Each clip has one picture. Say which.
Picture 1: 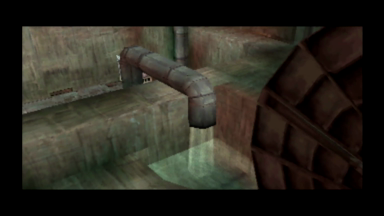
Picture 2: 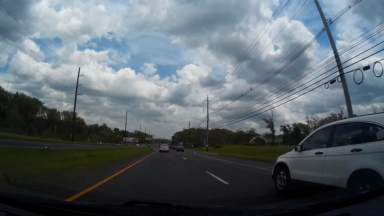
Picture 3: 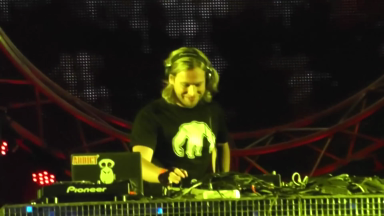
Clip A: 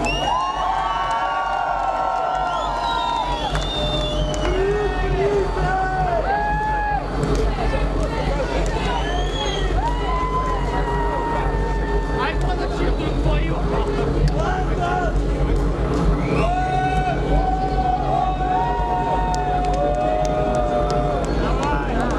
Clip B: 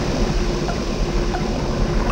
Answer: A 3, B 1